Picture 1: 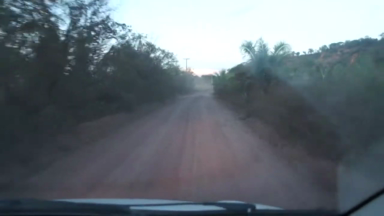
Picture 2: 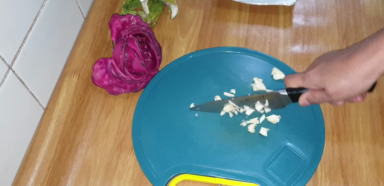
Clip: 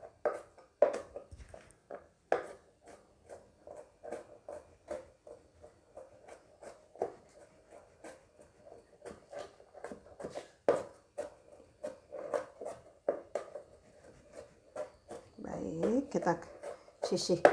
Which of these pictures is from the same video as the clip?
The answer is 2